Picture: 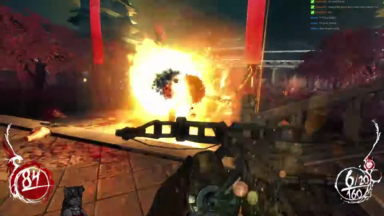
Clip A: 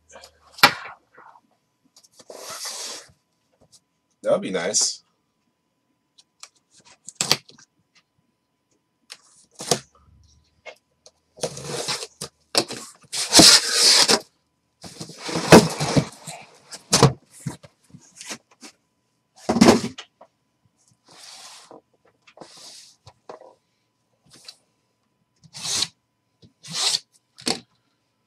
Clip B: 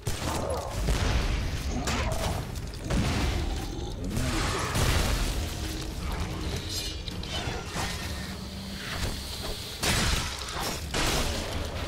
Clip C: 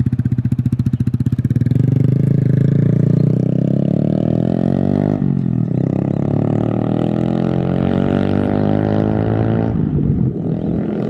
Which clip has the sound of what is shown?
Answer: B